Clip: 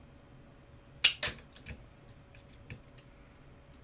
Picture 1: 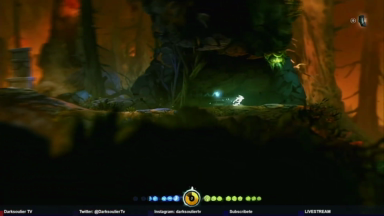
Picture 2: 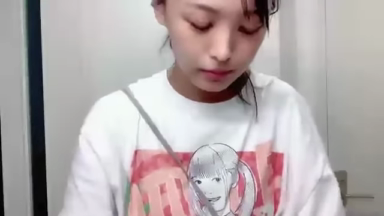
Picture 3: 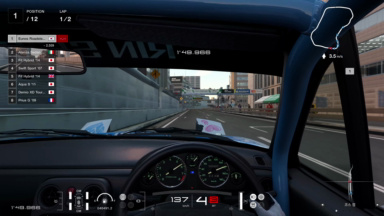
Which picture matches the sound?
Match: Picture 2